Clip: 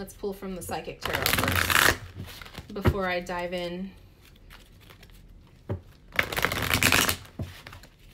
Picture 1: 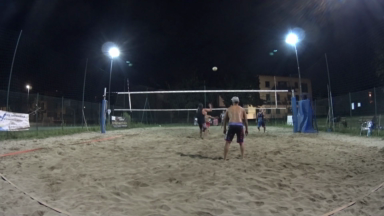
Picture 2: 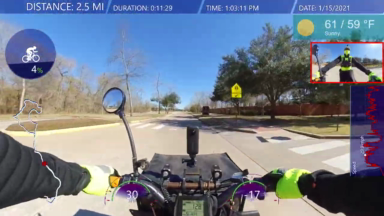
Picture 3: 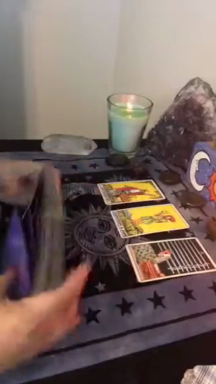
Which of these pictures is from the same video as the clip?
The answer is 3